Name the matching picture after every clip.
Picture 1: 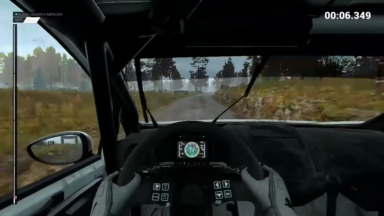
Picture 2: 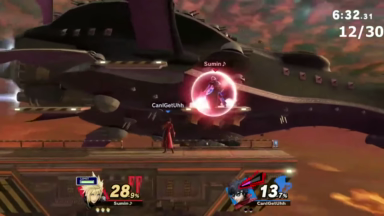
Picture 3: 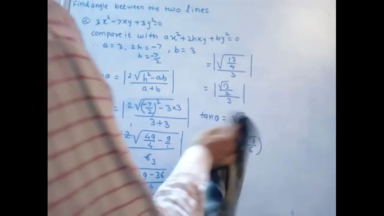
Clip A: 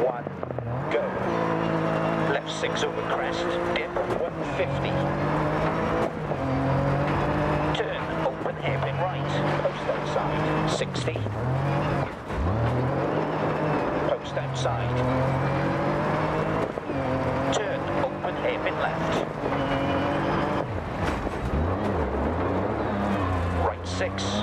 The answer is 1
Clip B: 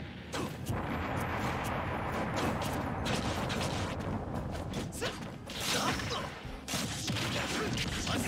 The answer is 2